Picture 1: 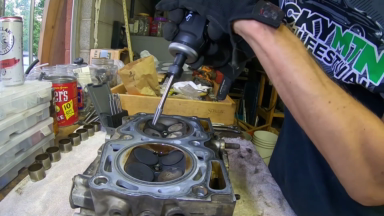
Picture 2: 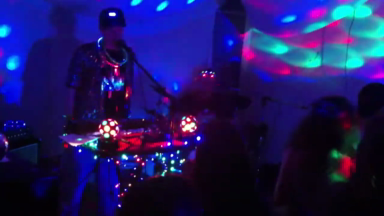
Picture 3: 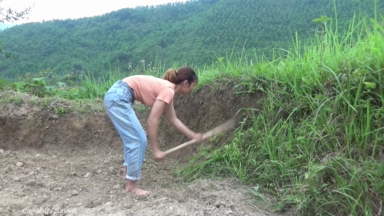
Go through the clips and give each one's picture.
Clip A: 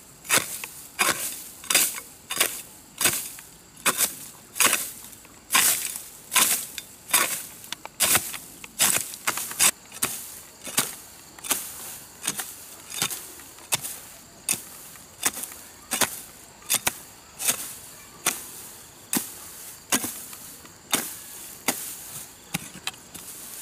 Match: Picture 3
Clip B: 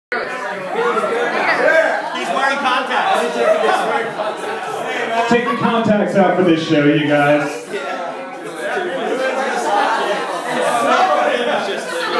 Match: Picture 2